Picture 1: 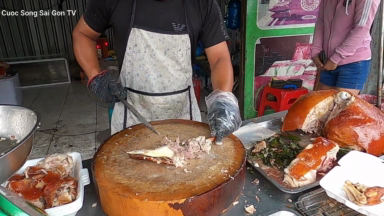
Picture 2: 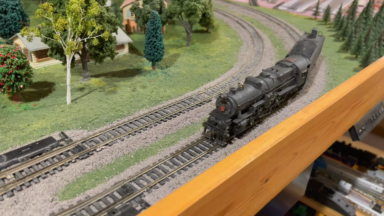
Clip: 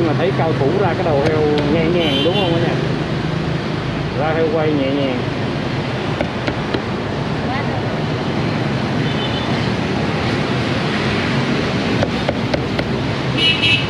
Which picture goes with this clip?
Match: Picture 1